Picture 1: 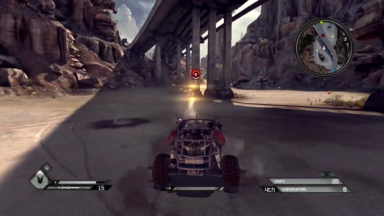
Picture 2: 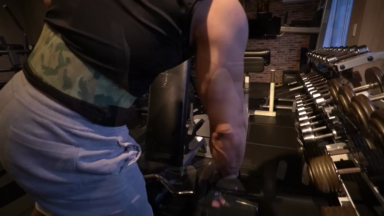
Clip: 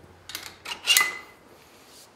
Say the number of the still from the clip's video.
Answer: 2